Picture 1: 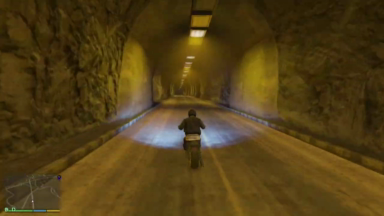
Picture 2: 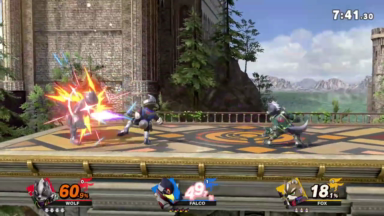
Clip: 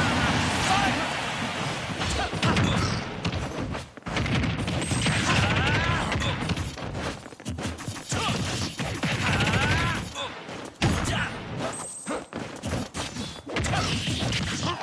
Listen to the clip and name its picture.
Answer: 2